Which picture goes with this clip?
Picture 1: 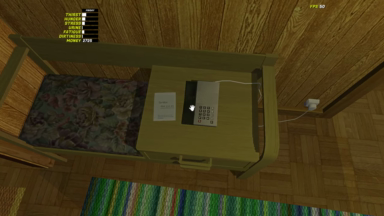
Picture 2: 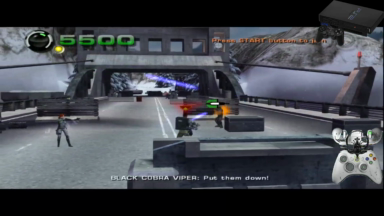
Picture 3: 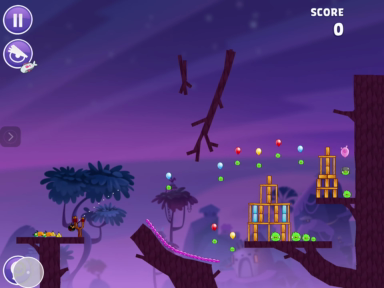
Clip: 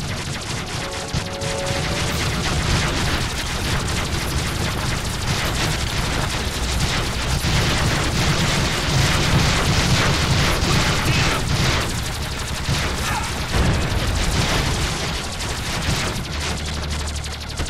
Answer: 2